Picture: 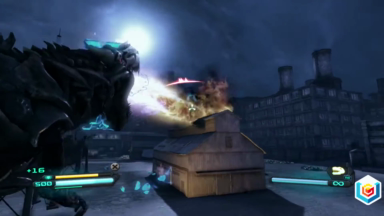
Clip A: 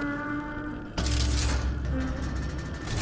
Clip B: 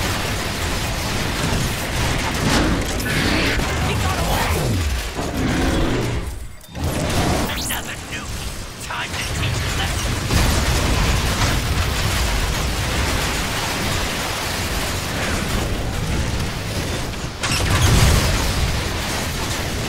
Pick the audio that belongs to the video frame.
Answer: B